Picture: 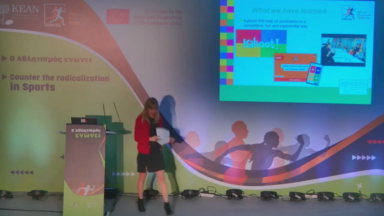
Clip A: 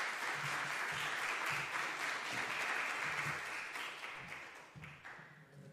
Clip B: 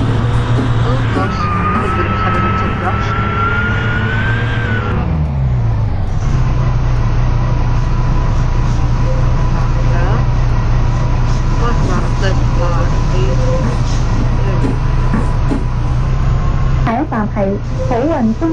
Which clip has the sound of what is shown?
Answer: A